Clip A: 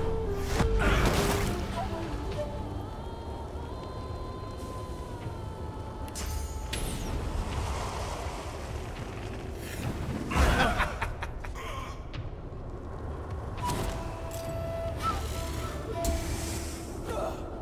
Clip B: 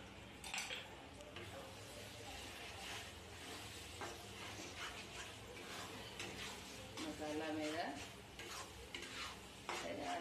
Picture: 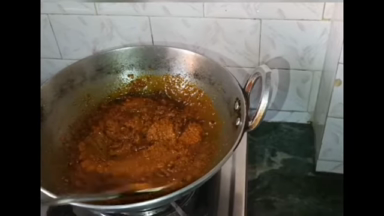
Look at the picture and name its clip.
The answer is B